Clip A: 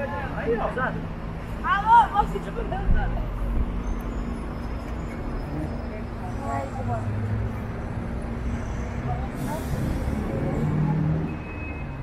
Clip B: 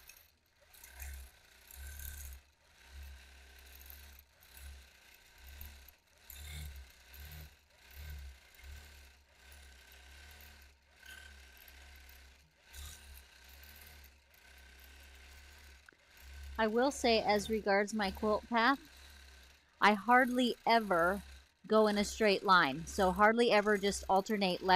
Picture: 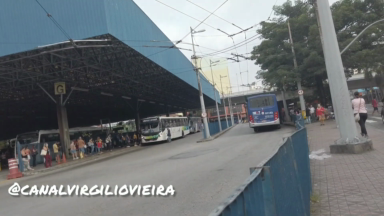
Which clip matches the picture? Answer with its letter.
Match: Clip A